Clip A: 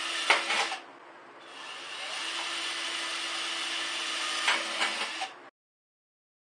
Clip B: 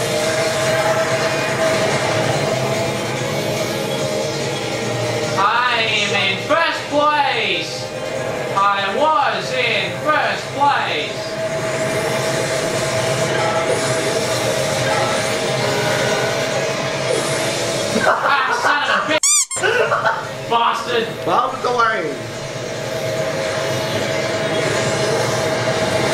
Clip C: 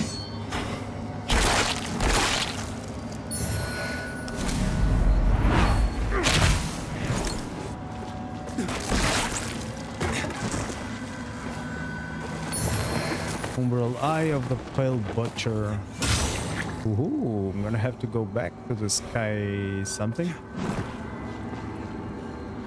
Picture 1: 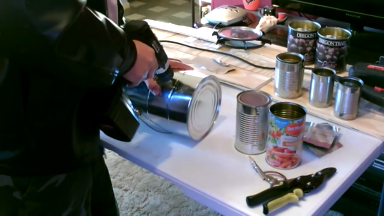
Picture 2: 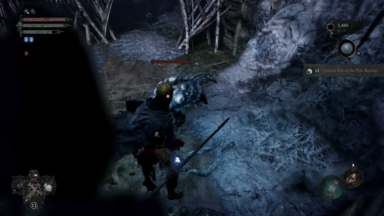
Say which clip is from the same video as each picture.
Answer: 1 A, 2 C